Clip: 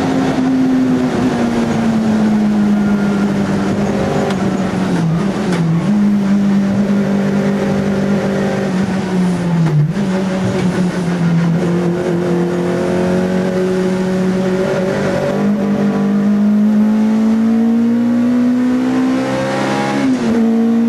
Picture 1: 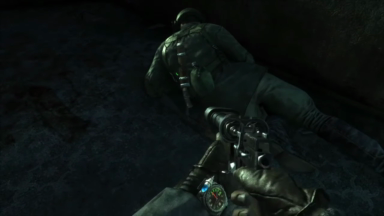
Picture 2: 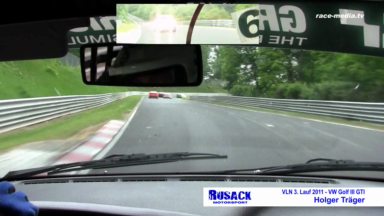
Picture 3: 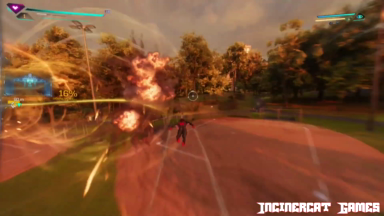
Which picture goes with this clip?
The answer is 2